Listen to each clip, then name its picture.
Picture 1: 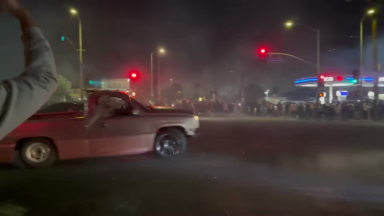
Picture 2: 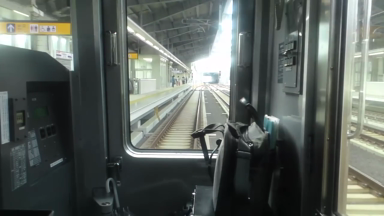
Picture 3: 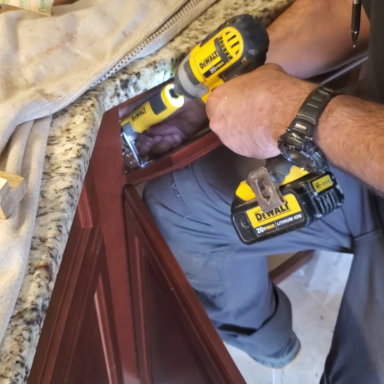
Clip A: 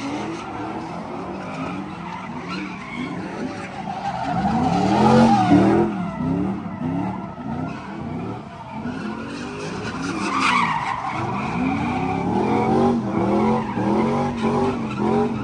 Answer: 1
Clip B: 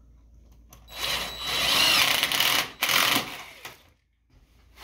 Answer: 3